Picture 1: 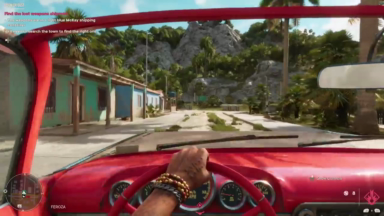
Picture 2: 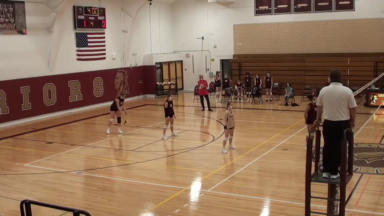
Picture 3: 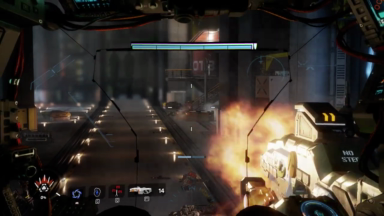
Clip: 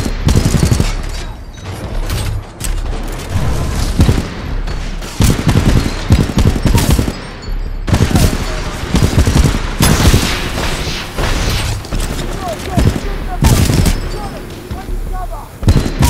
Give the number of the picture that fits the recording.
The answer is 3